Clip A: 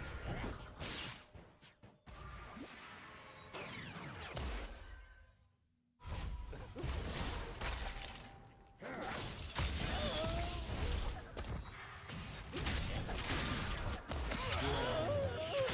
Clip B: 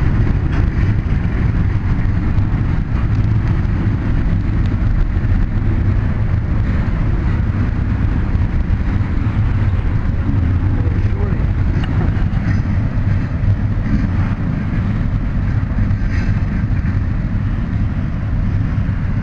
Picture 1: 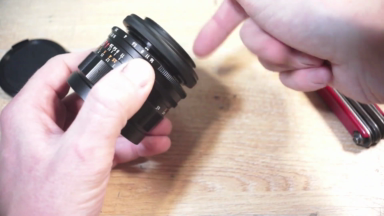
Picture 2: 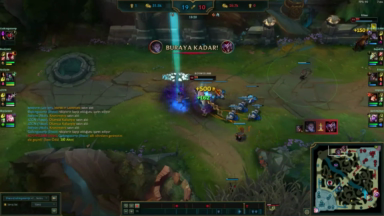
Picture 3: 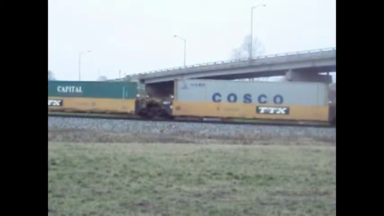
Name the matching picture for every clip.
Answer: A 2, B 3